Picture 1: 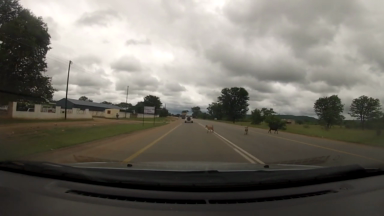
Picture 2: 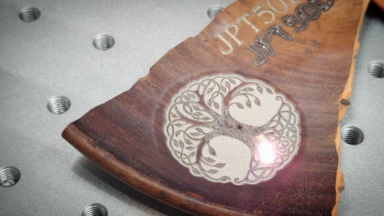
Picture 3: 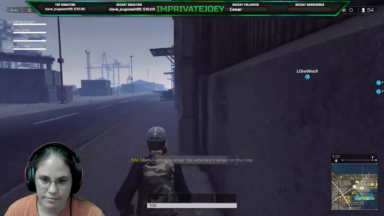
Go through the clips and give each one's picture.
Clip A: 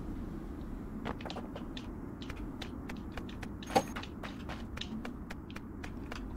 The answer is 3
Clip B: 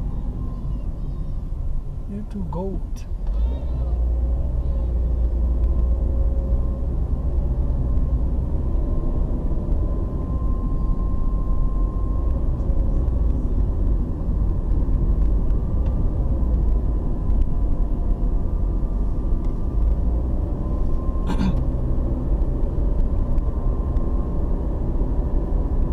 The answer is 1